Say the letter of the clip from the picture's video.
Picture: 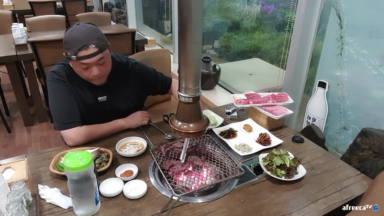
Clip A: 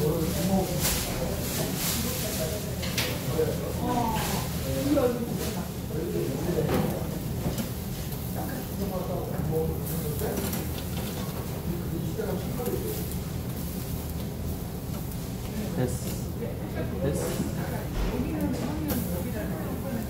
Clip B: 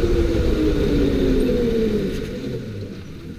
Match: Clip A